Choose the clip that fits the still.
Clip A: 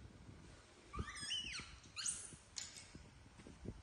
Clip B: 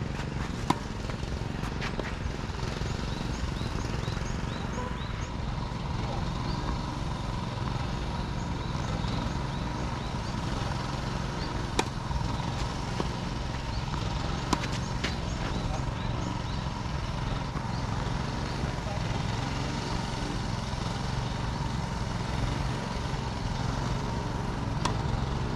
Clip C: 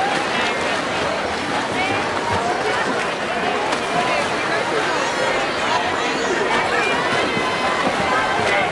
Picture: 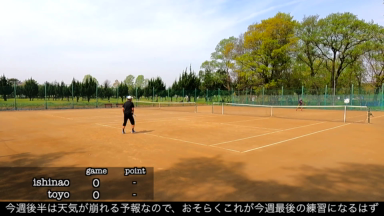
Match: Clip B